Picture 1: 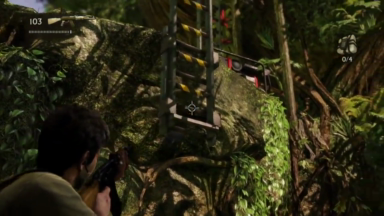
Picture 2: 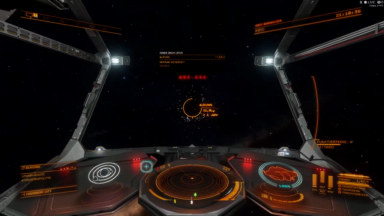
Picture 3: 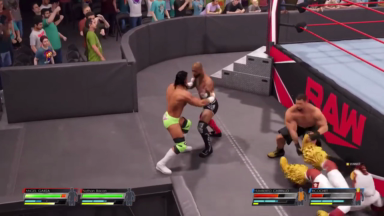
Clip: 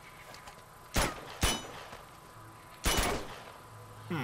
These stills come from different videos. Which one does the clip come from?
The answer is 1